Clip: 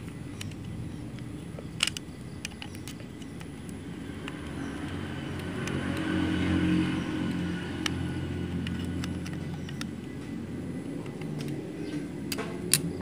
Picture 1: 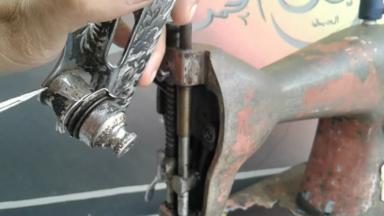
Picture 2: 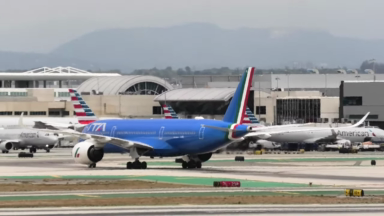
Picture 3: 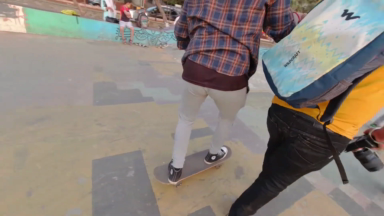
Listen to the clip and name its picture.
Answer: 1